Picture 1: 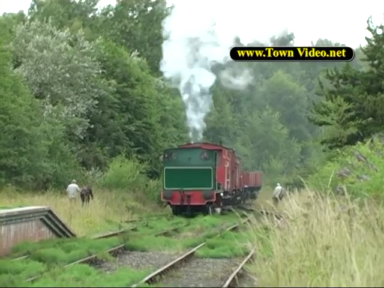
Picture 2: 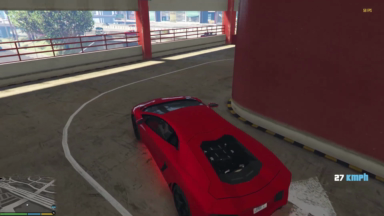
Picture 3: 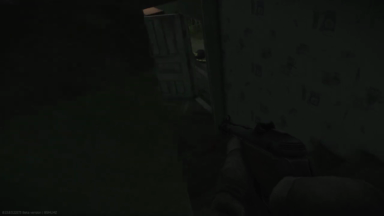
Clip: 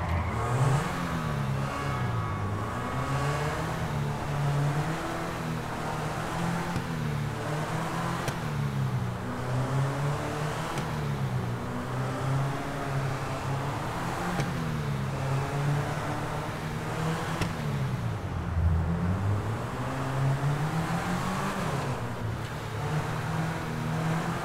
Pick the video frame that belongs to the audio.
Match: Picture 2